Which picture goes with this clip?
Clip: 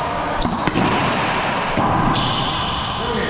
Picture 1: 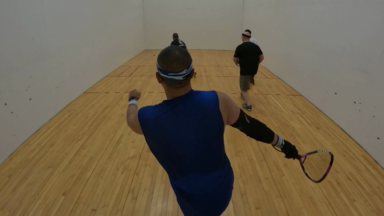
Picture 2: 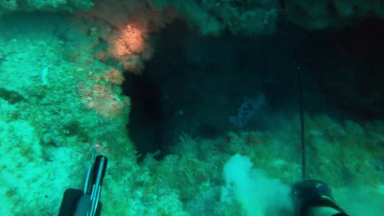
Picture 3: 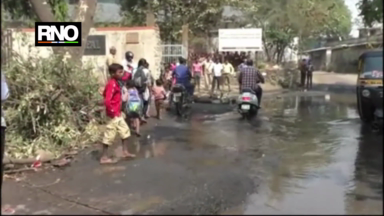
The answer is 1